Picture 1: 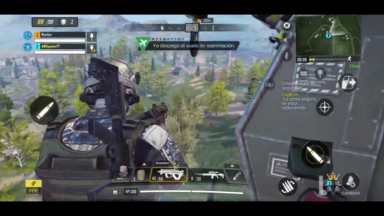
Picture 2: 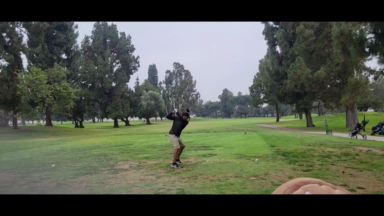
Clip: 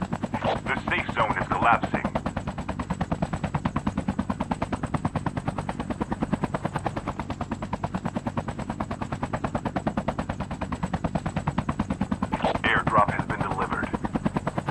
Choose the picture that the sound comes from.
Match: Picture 1